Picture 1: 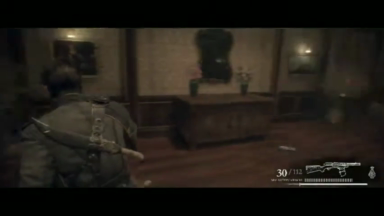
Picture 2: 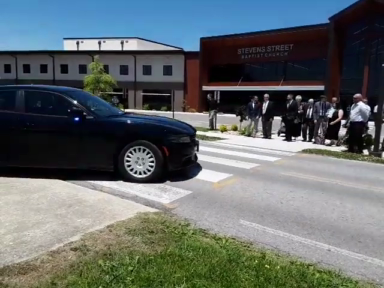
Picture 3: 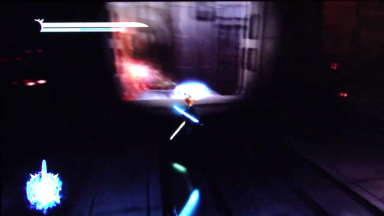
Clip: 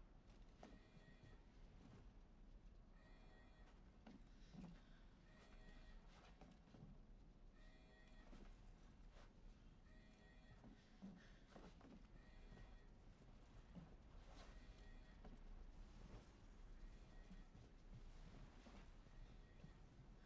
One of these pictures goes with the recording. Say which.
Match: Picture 1